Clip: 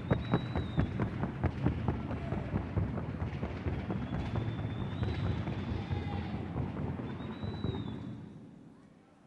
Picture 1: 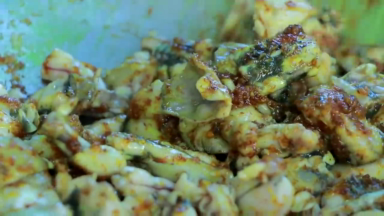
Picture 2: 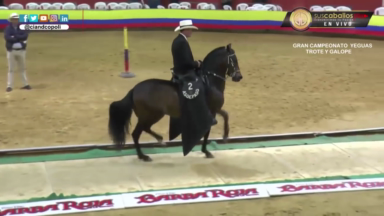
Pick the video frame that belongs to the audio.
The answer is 2